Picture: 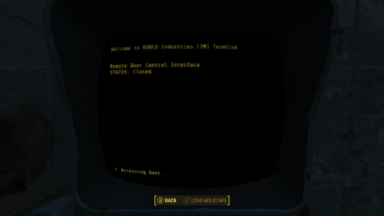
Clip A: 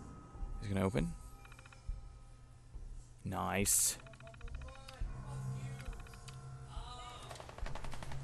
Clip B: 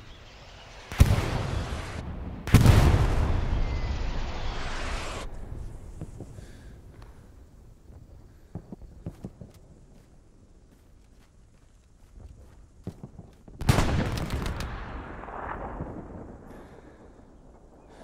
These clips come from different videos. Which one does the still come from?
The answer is A